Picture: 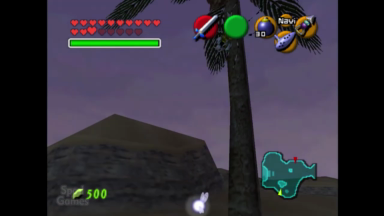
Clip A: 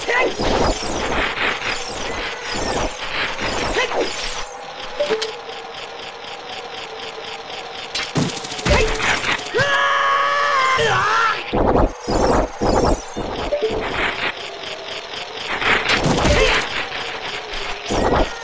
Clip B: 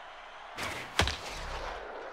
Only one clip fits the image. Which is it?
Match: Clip A